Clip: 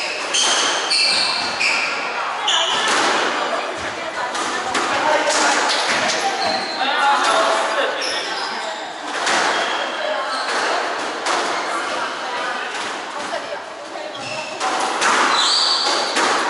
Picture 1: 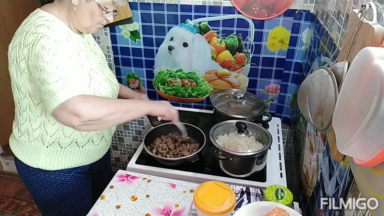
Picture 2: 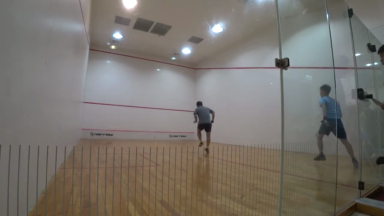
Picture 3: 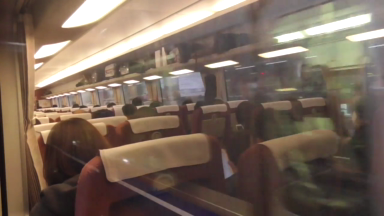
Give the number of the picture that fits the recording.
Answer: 2